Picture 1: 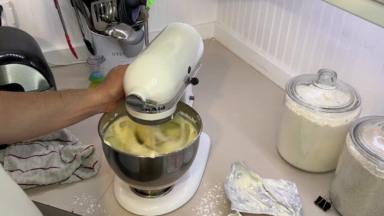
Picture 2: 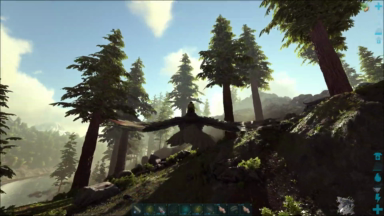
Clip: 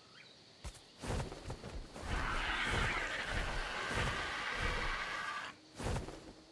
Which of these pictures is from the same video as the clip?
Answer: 2